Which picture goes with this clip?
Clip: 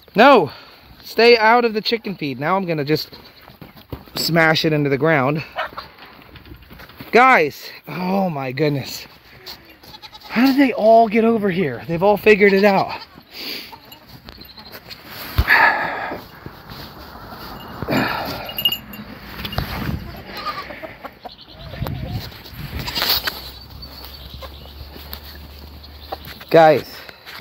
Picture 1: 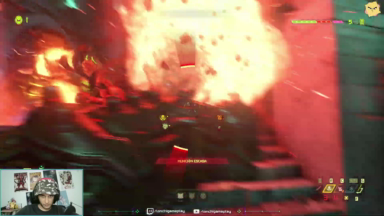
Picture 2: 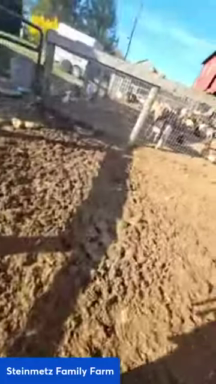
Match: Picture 2